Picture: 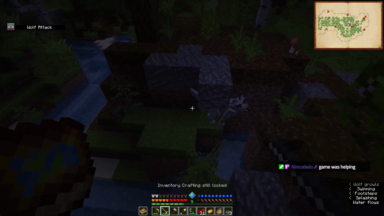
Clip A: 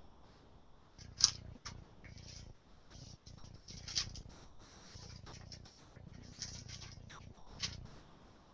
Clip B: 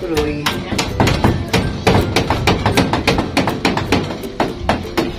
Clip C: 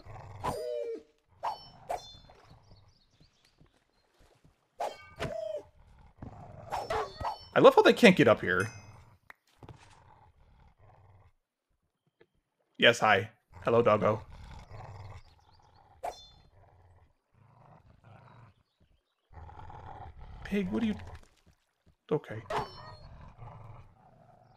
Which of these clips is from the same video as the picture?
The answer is C